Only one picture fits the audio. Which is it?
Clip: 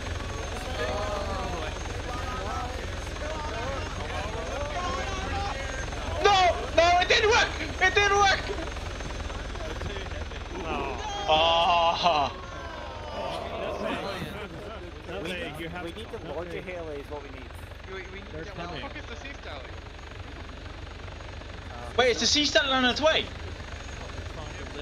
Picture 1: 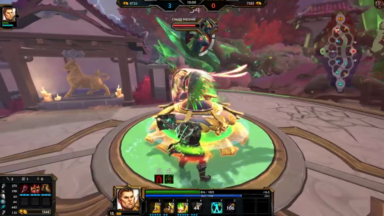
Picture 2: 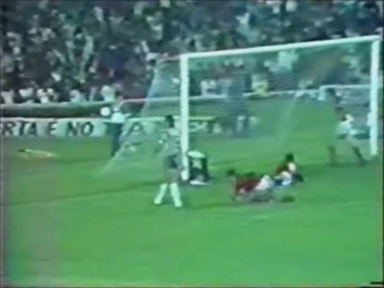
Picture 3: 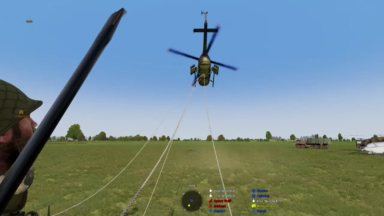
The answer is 3